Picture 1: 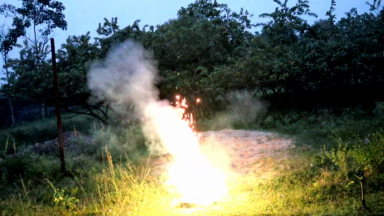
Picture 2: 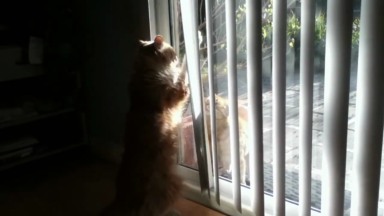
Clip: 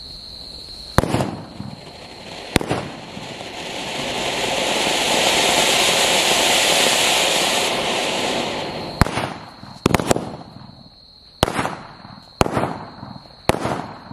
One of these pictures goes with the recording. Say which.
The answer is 1